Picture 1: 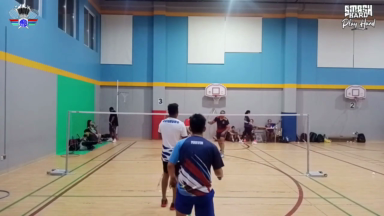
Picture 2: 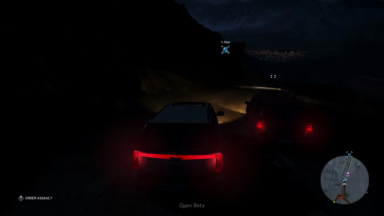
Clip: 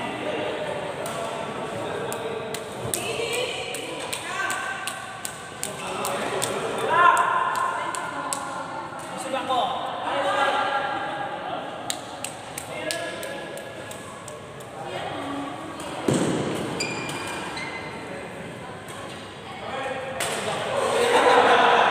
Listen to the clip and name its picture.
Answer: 1